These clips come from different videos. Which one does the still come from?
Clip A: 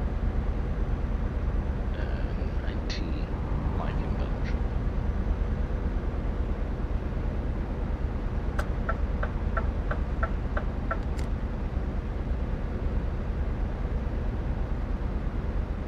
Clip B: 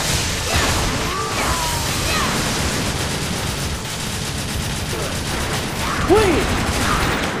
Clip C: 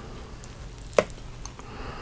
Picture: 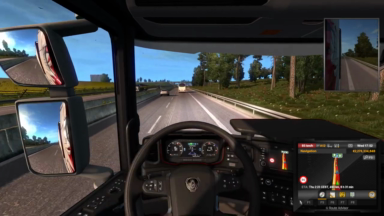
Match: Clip A